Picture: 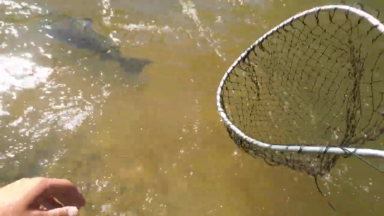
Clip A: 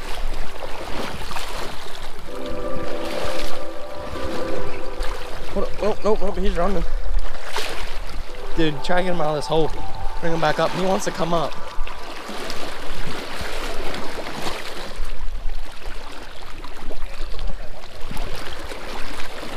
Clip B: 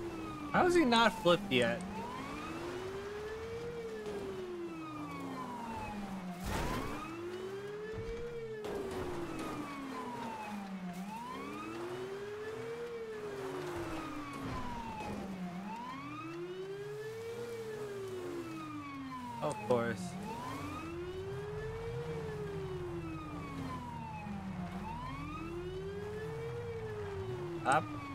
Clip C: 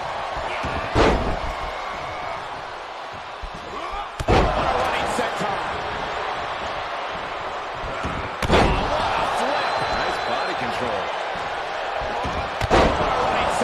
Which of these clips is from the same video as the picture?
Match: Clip A